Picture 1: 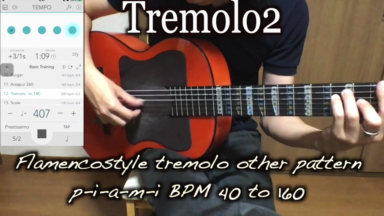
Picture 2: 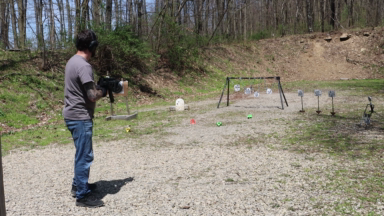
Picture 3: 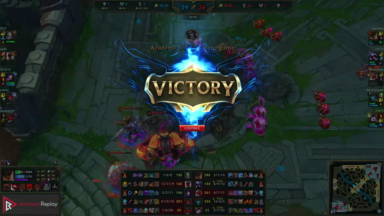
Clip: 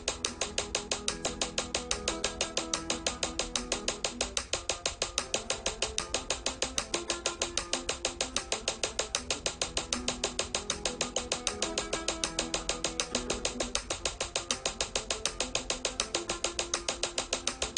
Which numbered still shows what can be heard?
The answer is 1